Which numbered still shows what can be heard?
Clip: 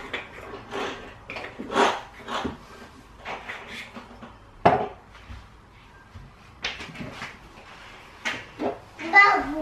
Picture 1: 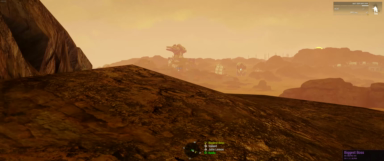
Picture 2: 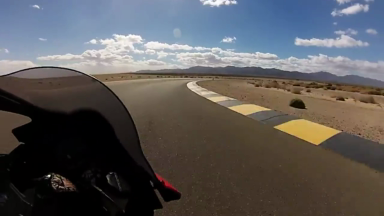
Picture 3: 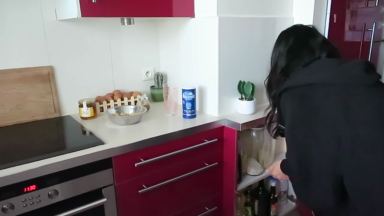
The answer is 3